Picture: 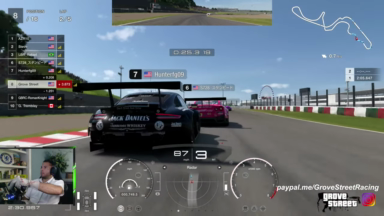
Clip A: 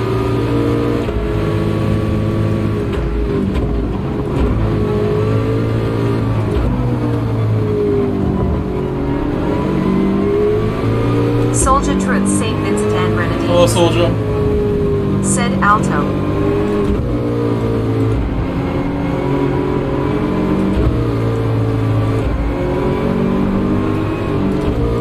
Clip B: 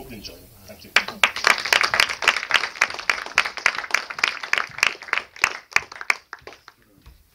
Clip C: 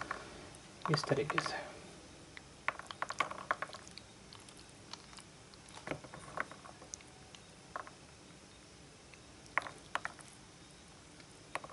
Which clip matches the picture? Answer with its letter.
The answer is A